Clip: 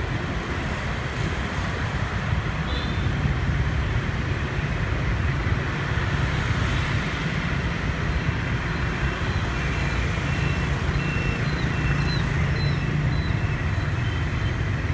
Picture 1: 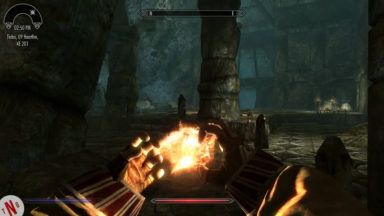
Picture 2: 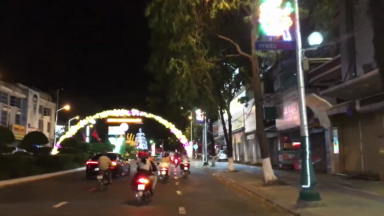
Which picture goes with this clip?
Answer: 2